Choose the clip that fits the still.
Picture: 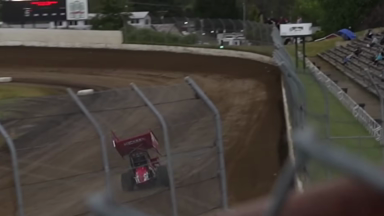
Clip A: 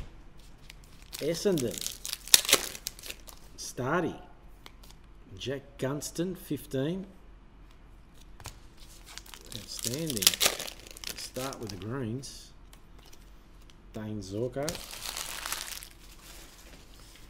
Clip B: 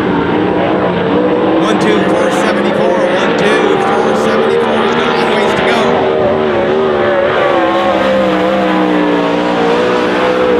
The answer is B